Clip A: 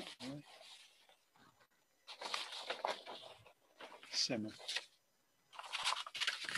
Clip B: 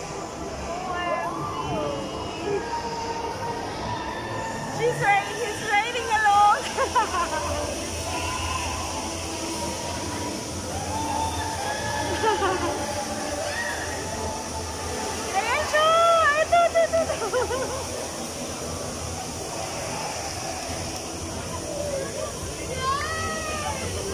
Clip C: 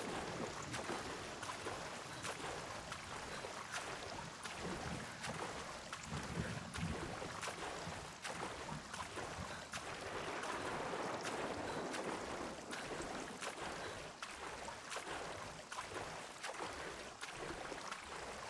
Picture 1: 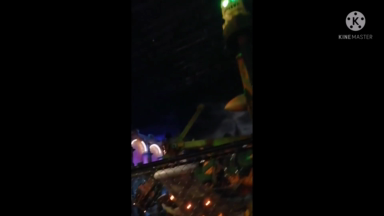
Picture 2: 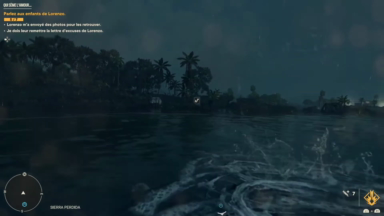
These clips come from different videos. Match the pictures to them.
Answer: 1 B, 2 C